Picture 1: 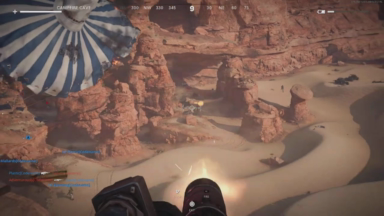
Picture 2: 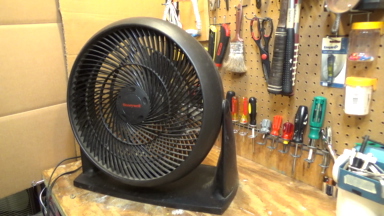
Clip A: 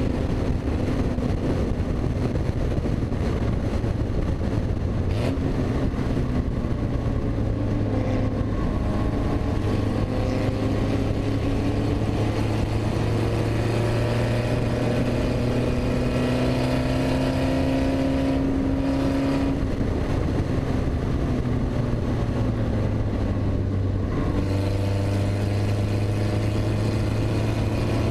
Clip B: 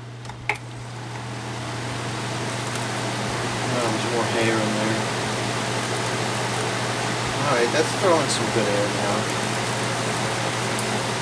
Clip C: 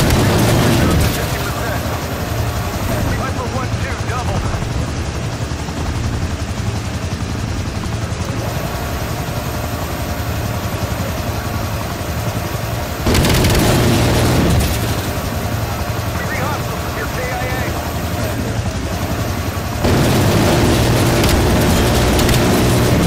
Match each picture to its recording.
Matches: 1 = C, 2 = B